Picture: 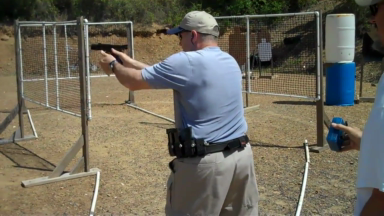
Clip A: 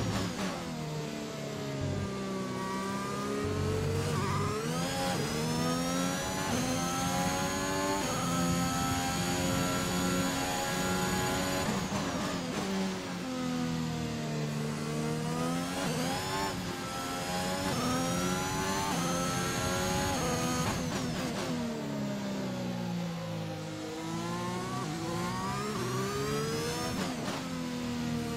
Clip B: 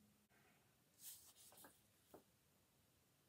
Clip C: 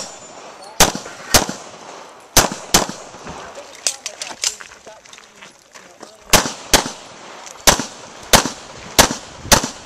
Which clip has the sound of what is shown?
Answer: C